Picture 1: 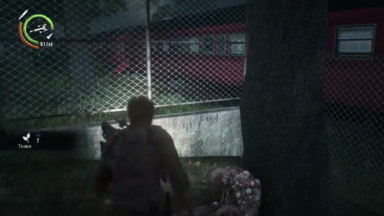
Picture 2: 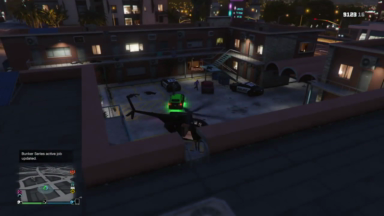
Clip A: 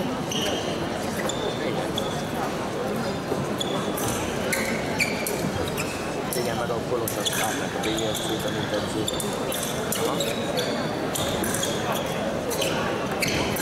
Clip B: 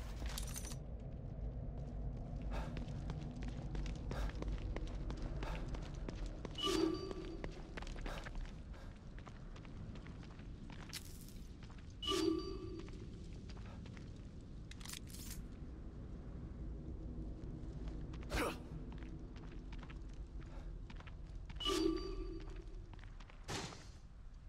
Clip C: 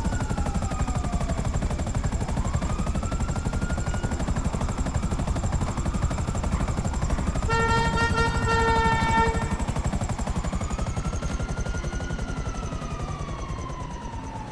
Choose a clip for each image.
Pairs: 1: B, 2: C